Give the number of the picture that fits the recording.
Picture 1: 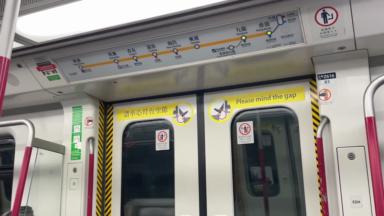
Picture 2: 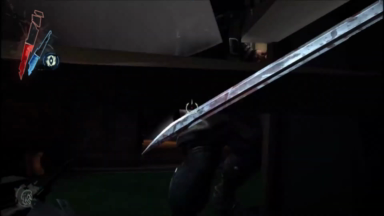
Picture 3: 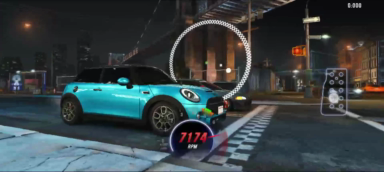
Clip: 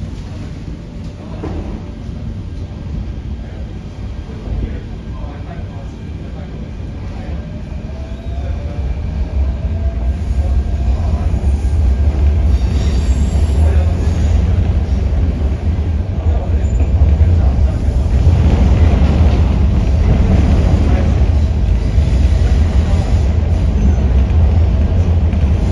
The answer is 1